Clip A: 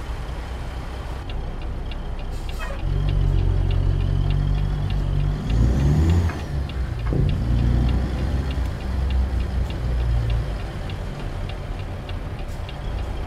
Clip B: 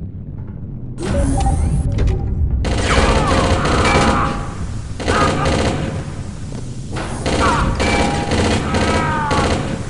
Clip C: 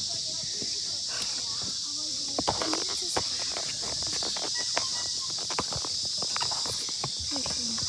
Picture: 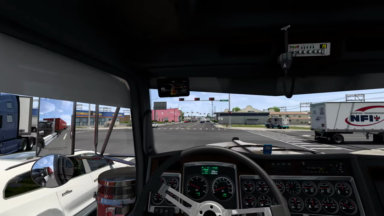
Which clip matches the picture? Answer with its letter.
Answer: A